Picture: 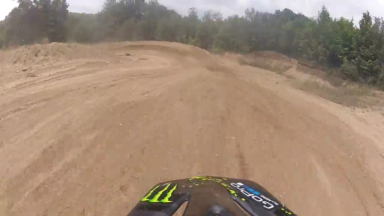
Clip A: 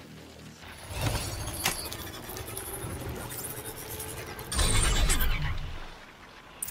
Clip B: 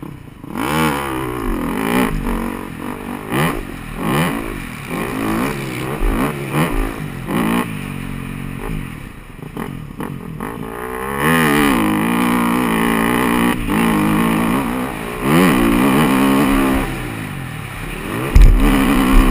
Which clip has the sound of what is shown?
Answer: B